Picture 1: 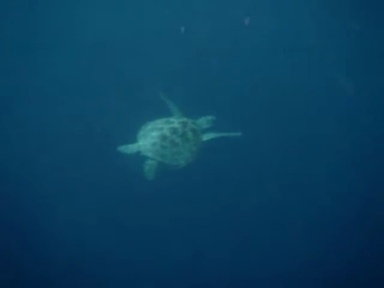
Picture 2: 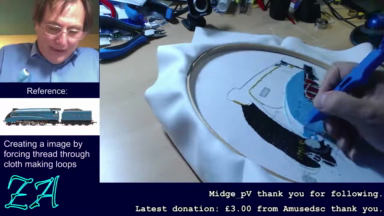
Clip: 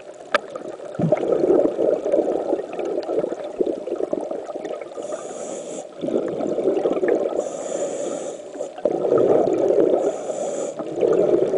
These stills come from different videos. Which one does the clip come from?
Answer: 1